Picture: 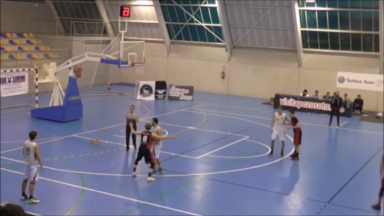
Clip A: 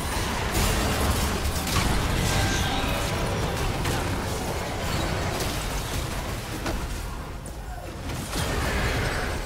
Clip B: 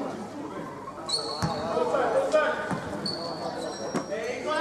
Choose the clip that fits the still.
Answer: B